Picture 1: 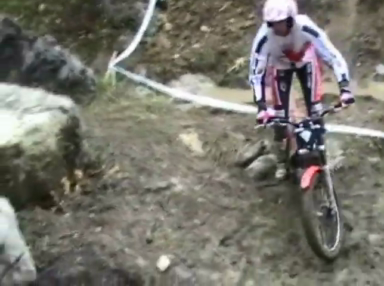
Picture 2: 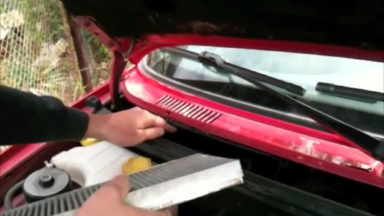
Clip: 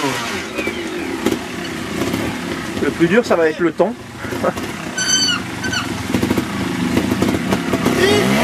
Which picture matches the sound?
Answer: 1